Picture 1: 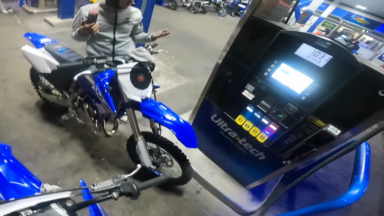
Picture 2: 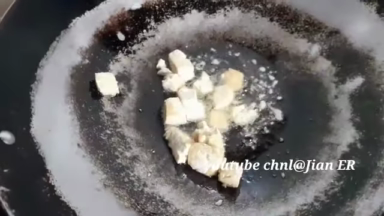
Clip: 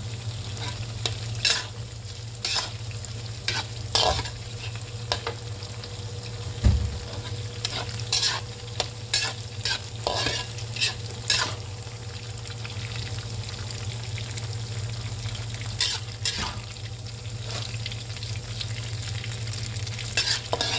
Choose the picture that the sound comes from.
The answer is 2